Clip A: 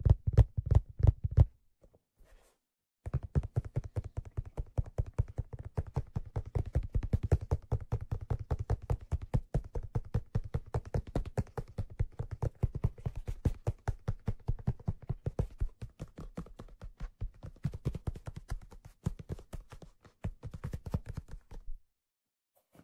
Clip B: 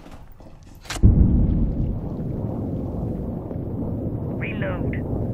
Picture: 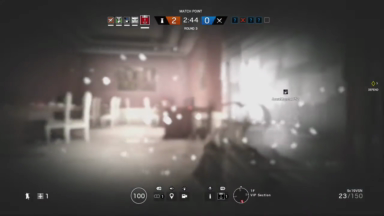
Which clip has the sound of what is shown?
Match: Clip B